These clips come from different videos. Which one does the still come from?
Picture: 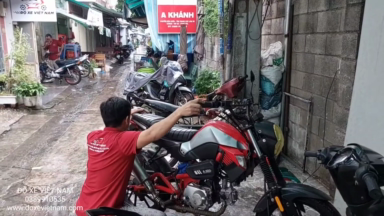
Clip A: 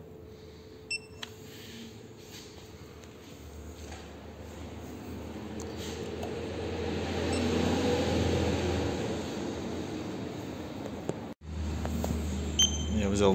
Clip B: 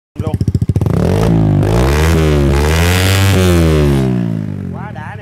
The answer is B